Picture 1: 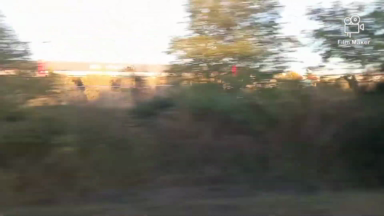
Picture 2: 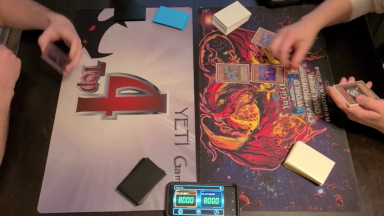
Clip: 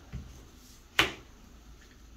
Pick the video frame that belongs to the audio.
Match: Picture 2